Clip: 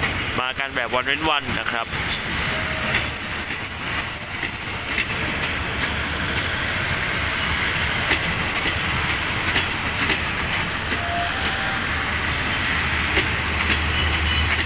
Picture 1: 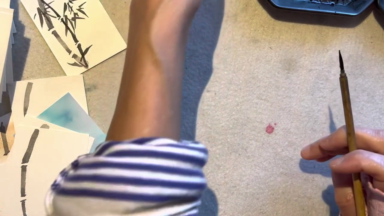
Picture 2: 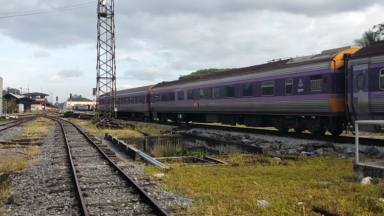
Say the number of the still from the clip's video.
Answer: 2